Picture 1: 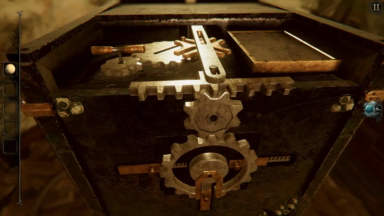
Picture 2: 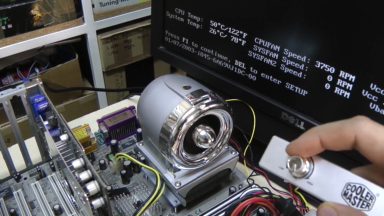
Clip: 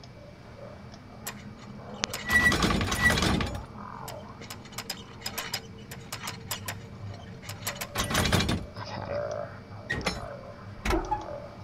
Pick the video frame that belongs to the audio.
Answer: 1